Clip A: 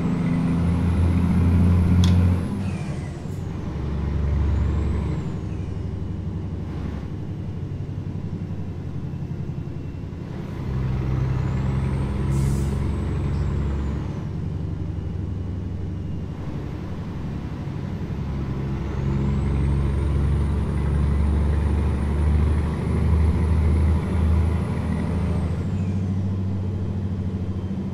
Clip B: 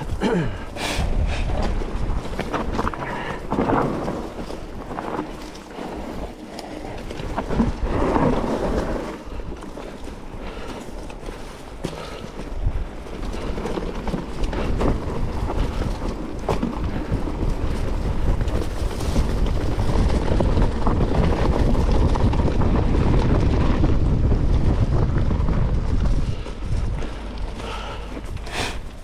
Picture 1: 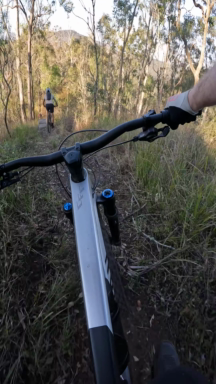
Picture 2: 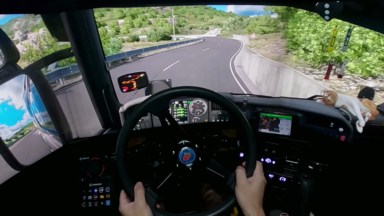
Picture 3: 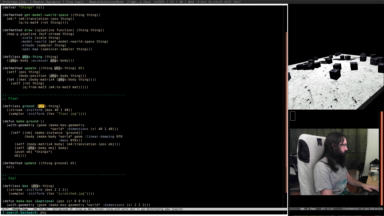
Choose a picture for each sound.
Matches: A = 2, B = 1